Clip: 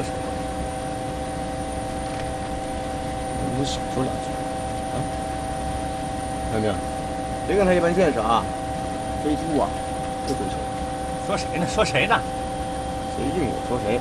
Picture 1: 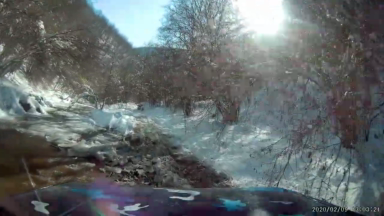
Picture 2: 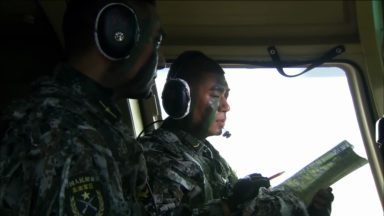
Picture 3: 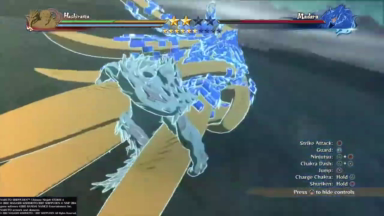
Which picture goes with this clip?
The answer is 2